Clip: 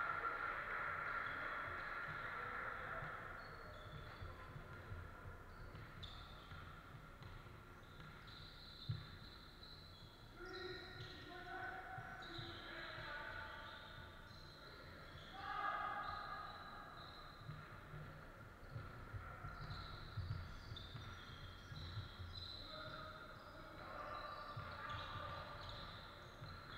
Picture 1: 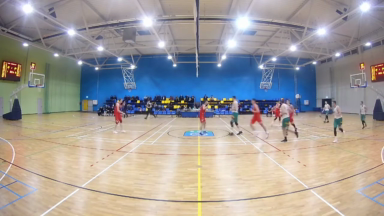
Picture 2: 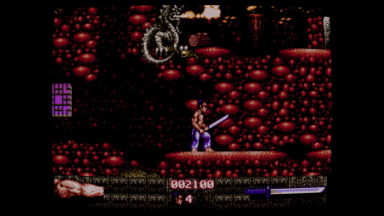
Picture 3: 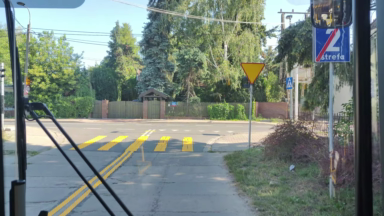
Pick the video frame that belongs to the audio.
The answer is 1